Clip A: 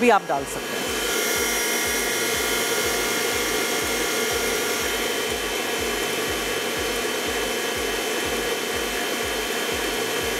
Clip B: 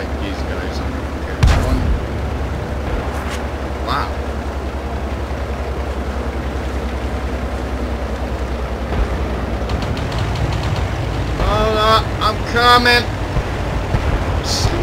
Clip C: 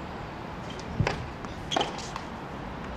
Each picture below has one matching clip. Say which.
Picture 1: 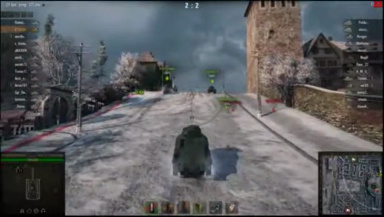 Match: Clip B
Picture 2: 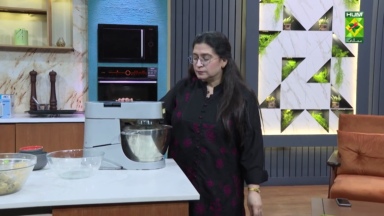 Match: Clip A